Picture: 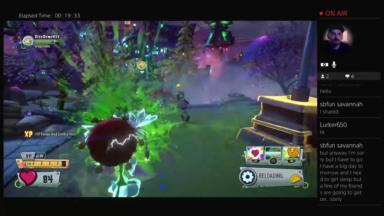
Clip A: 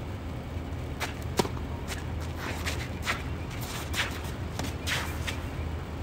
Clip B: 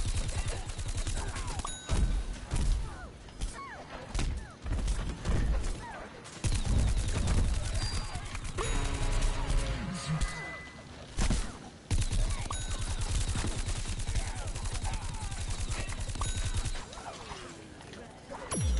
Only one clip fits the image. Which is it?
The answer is B